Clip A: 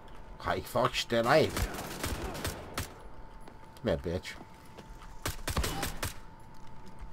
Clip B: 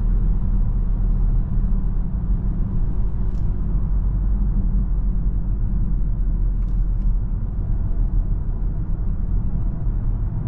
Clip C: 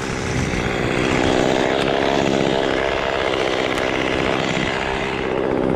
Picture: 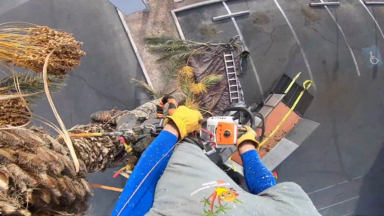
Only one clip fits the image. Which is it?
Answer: C